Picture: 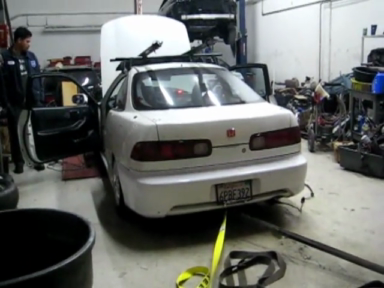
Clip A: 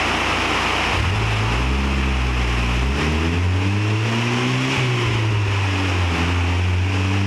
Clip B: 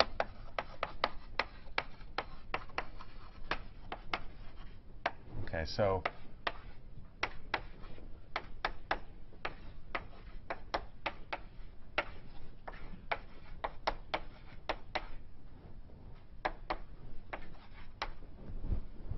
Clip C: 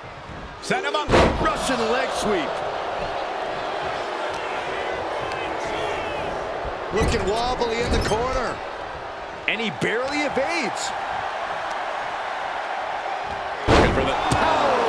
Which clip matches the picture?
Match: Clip A